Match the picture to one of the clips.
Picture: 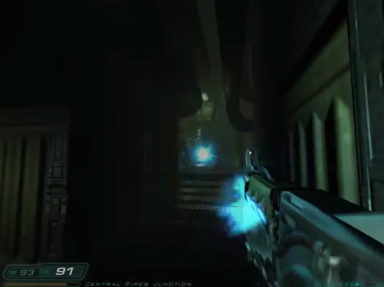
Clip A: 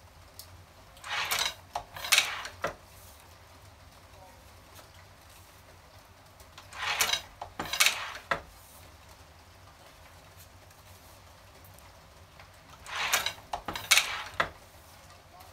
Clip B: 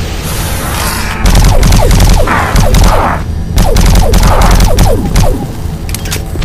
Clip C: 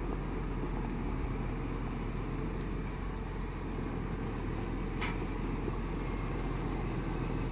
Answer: B